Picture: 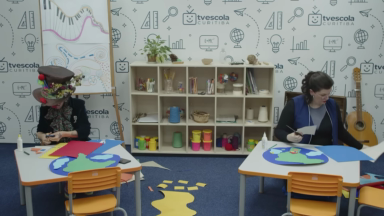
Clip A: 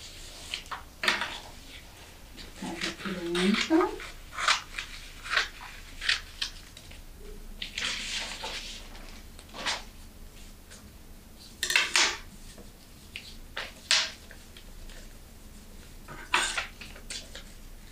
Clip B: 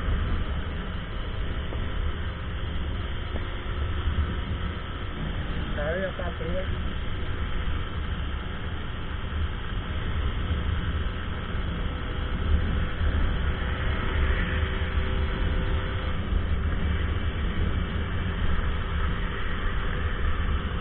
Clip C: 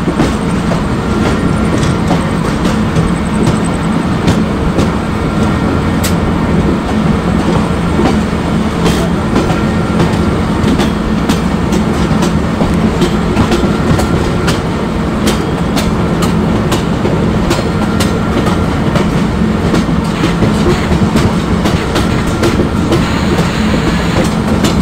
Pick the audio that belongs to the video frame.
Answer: A